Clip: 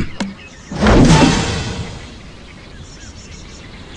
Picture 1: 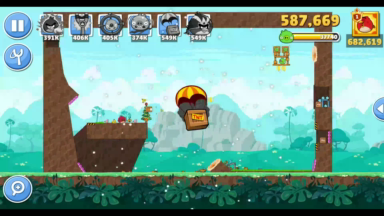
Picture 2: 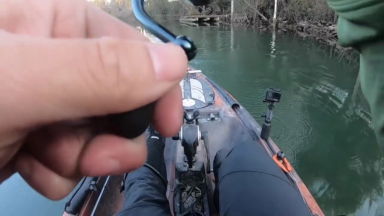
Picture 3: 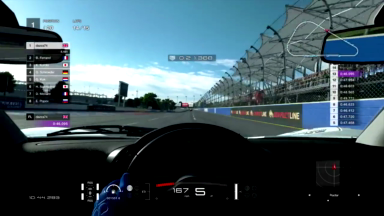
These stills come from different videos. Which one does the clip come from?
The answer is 1